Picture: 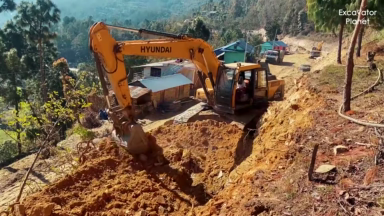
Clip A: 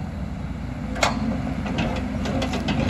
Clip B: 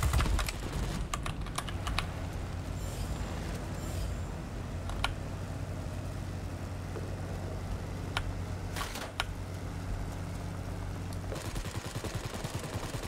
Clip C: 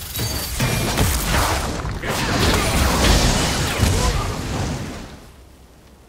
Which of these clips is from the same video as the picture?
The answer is A